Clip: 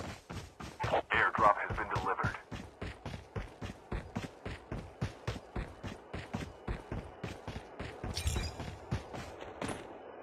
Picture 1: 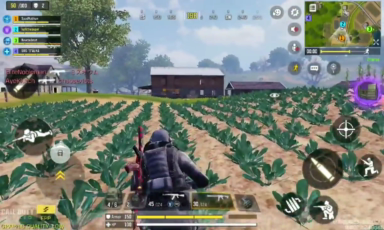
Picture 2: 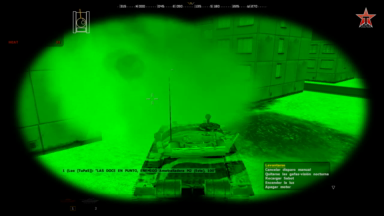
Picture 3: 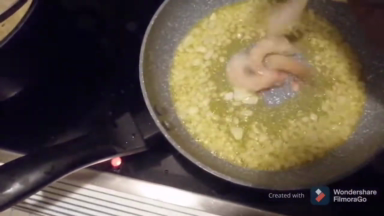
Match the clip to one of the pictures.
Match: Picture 1